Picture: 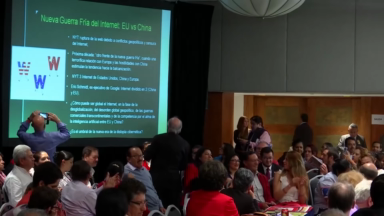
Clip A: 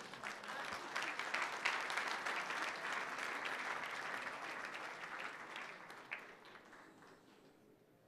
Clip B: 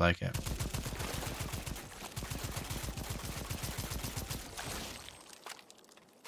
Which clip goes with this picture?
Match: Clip A